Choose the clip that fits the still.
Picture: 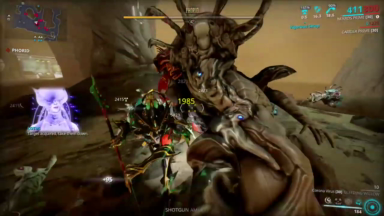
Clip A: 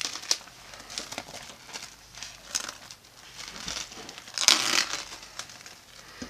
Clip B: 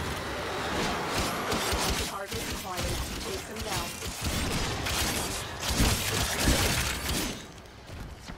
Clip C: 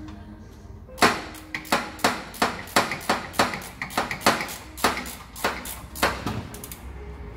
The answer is B